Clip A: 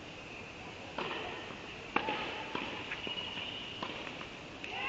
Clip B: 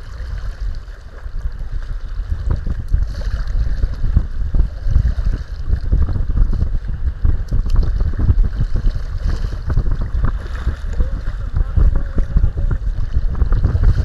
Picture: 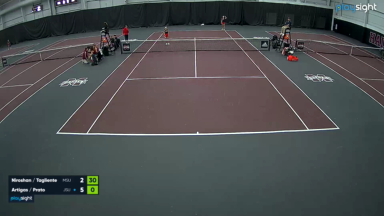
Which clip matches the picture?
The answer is A